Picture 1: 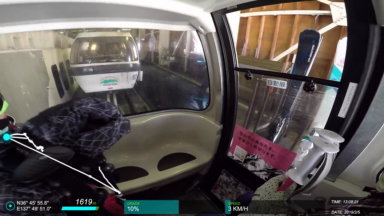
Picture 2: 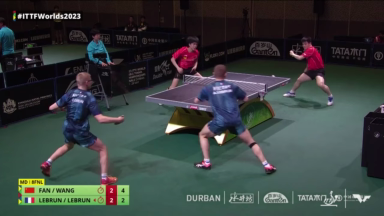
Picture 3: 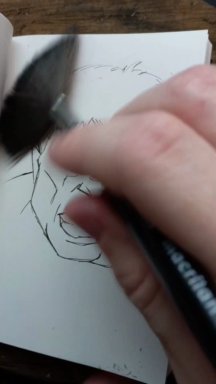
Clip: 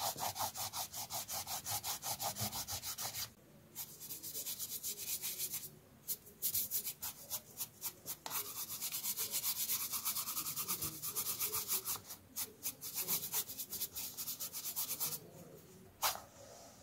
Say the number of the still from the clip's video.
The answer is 3